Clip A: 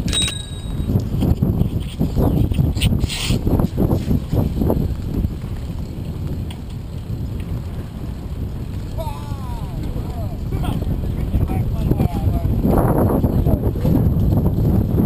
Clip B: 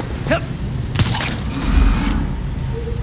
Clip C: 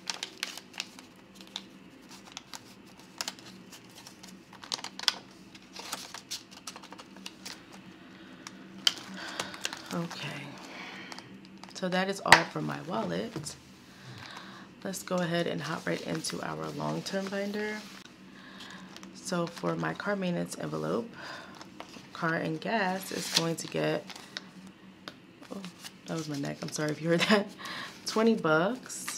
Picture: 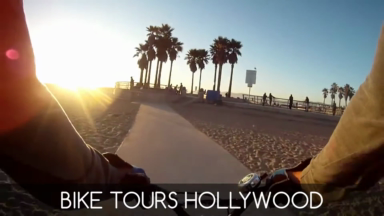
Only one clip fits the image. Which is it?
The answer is A